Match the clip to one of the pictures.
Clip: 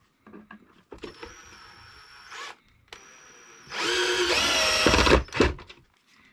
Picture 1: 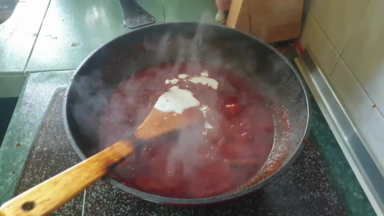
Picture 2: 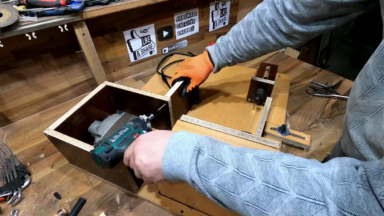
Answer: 2